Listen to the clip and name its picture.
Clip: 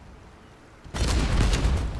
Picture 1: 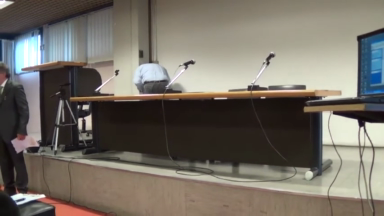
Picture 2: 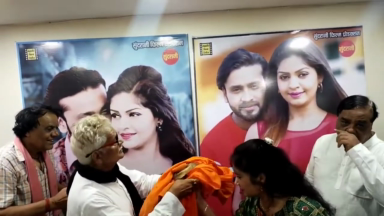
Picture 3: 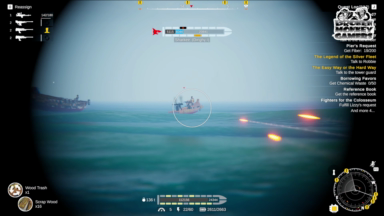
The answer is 3